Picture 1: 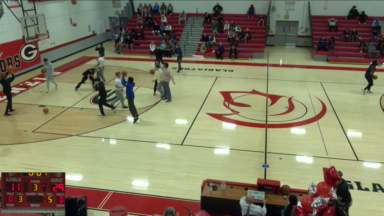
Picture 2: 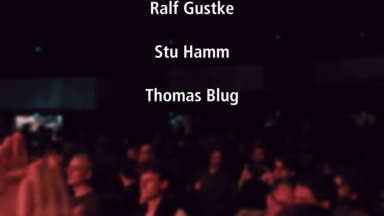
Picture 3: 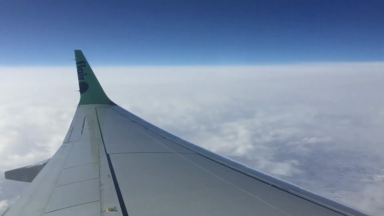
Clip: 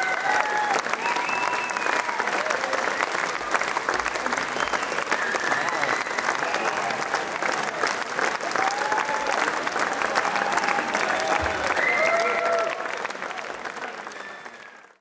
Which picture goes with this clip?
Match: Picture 2